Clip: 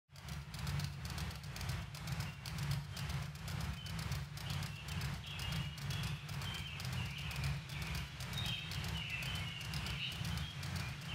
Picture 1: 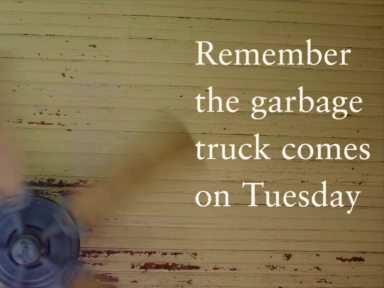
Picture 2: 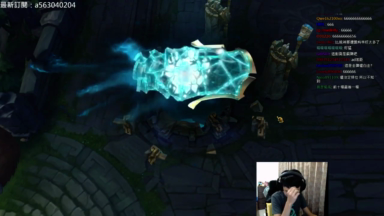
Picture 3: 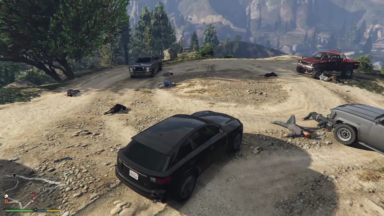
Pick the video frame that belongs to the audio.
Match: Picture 1